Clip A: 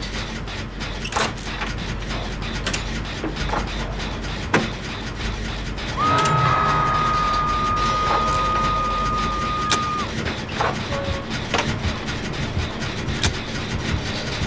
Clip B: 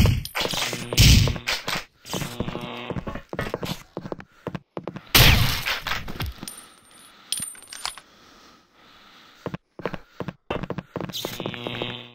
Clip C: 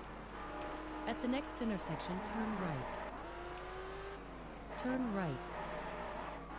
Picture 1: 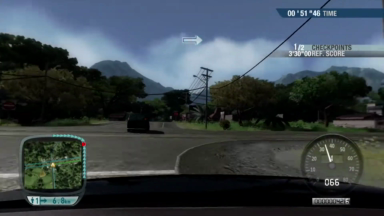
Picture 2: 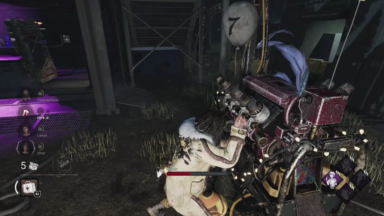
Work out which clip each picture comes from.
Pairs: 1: C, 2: A